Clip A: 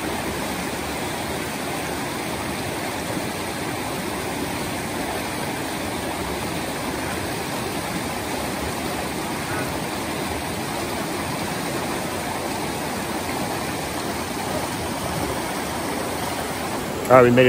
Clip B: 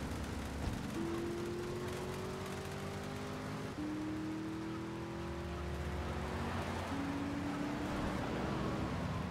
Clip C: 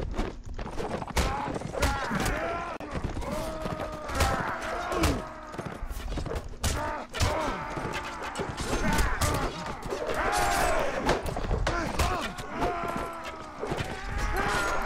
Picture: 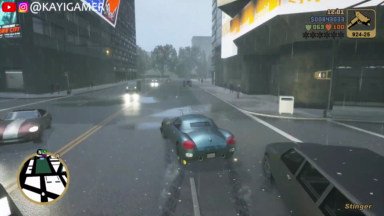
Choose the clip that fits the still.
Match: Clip B